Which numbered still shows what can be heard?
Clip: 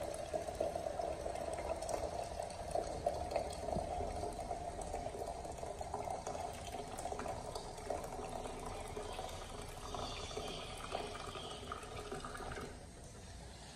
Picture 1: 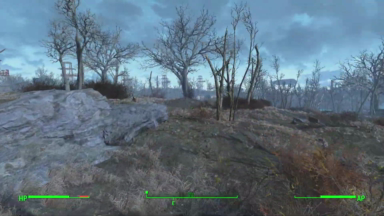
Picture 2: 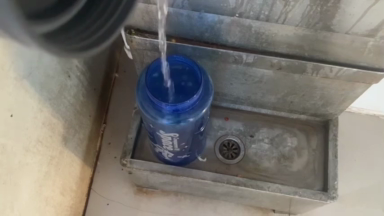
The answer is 2